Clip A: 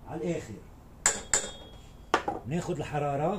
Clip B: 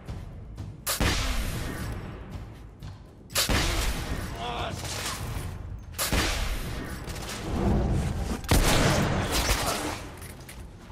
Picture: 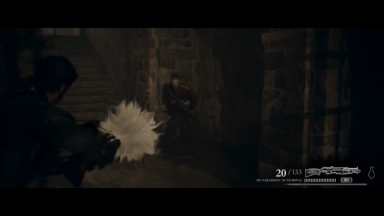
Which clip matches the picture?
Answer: B